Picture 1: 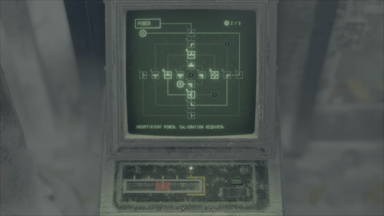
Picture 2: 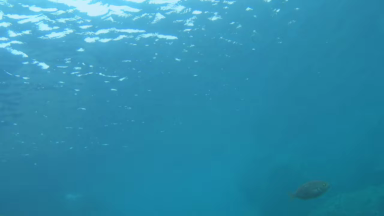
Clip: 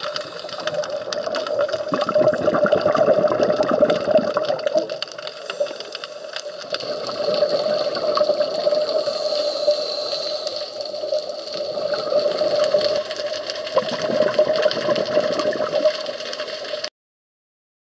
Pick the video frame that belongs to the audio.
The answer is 2